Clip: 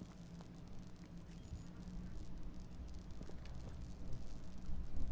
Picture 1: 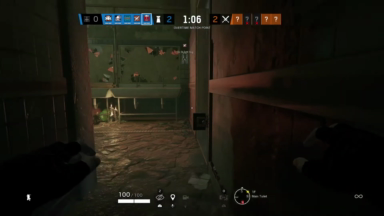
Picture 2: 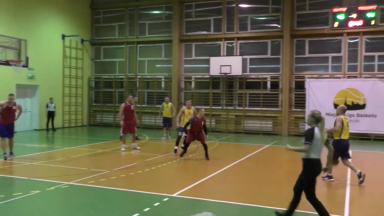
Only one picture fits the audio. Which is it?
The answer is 1